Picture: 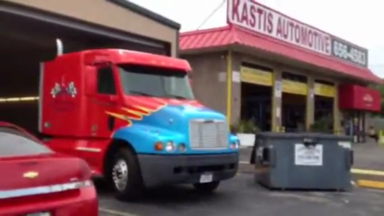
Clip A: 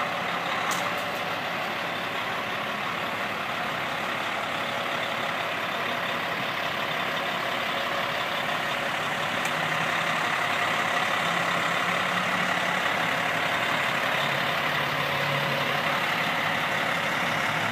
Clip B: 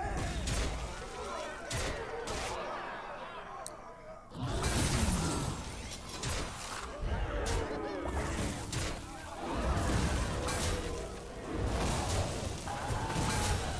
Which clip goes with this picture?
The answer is A